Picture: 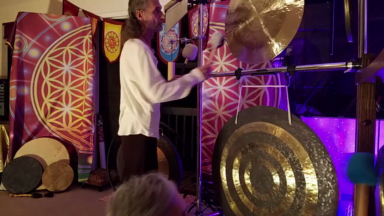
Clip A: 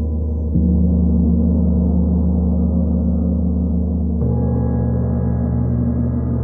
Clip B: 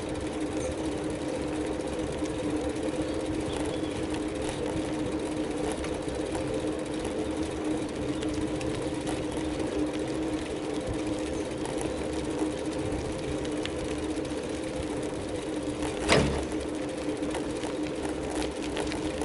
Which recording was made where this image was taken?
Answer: A